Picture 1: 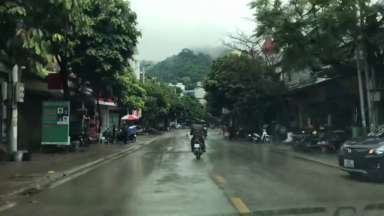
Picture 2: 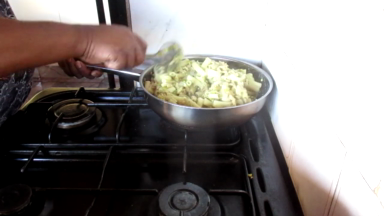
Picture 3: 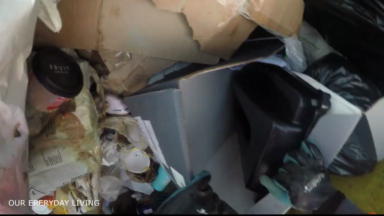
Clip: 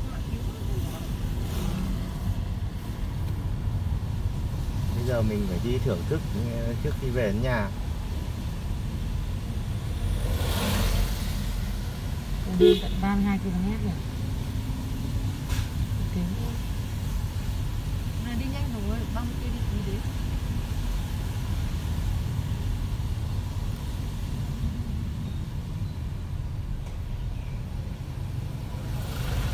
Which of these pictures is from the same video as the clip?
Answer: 1